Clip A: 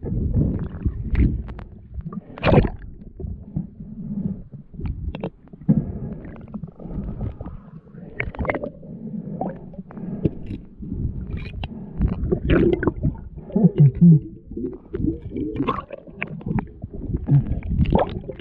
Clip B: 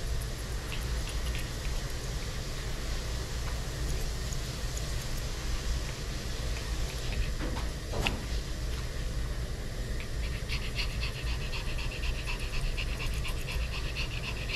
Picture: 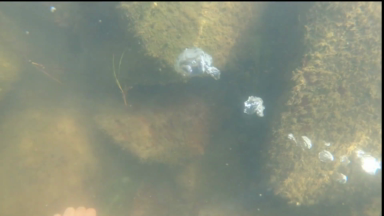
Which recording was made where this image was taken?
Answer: A